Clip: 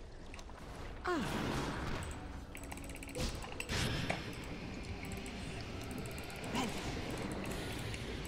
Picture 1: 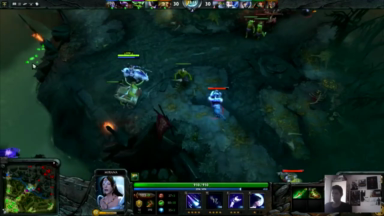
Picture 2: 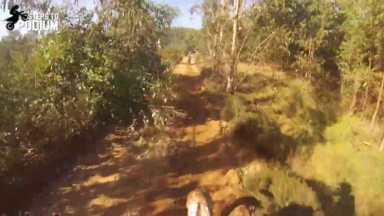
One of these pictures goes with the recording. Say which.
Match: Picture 1